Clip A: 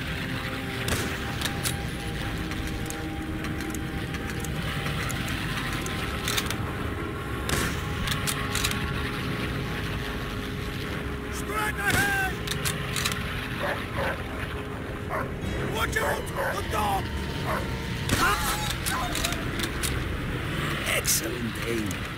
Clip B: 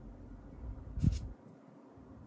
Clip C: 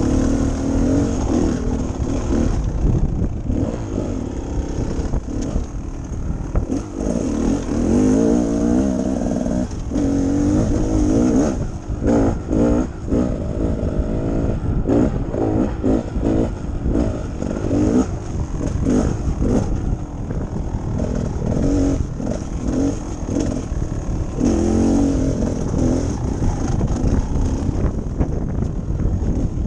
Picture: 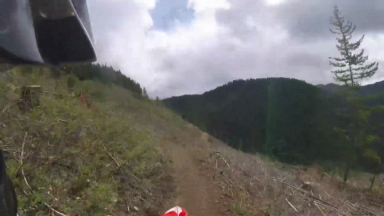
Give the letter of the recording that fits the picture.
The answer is C